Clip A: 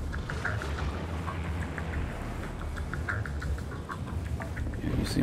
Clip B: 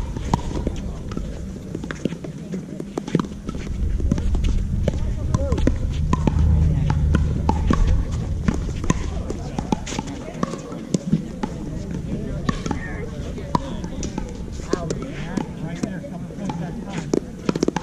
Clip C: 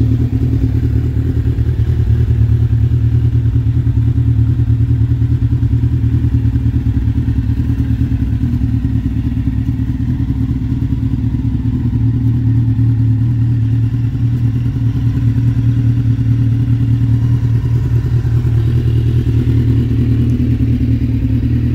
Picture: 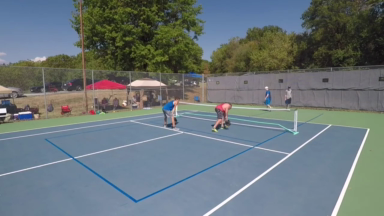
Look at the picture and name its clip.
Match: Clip B